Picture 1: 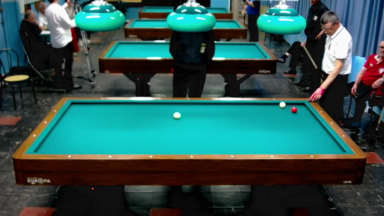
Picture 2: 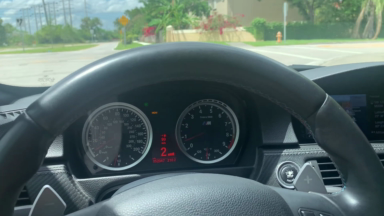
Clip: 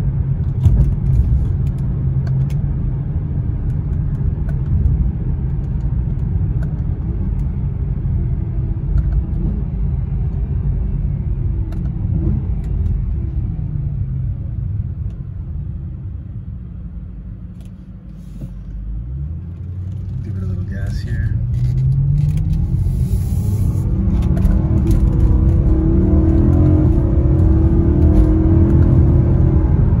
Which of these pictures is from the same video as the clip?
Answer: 2